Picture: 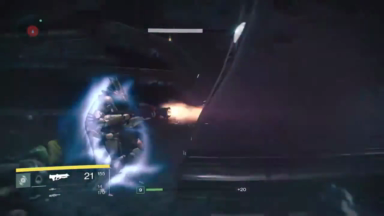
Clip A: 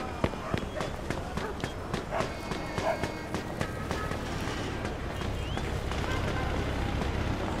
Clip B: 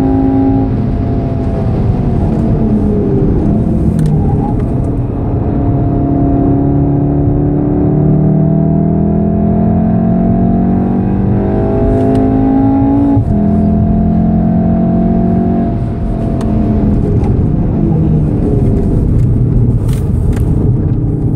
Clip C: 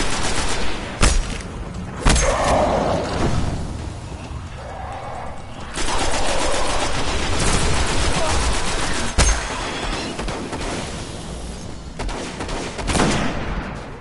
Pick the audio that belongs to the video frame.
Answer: C